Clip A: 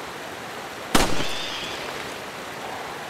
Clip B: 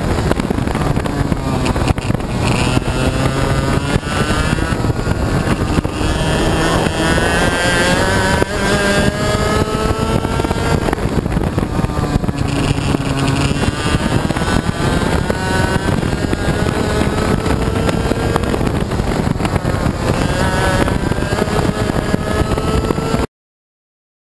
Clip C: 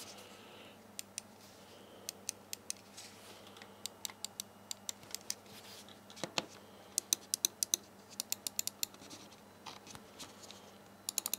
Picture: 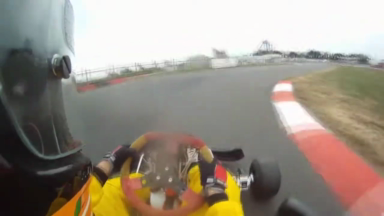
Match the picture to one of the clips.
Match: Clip B